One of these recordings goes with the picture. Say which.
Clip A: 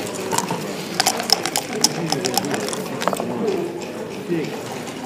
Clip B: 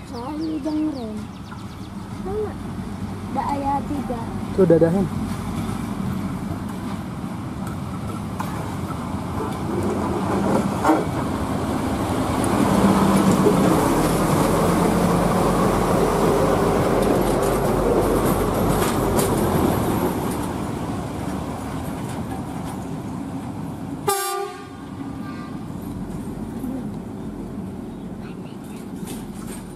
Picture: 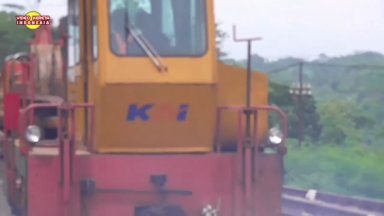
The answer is B